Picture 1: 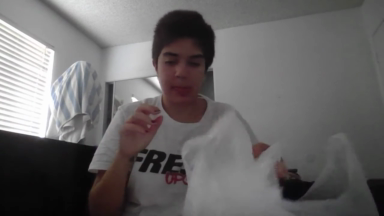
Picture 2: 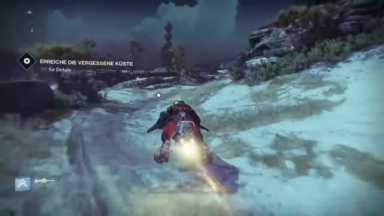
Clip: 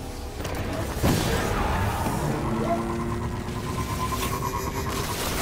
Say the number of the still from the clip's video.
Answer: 2